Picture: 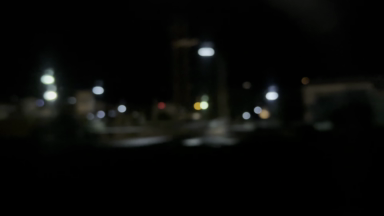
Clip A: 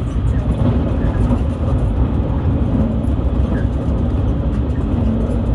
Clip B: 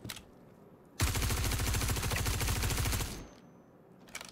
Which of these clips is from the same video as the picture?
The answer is A